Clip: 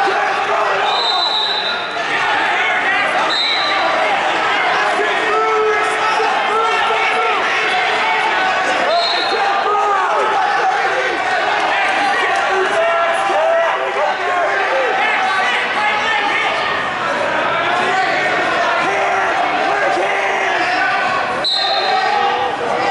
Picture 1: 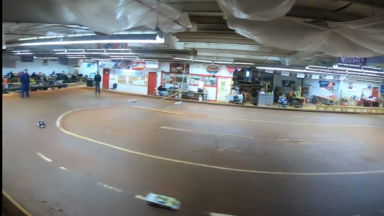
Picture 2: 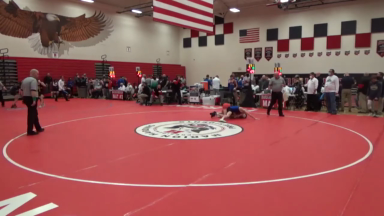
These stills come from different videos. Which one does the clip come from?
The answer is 2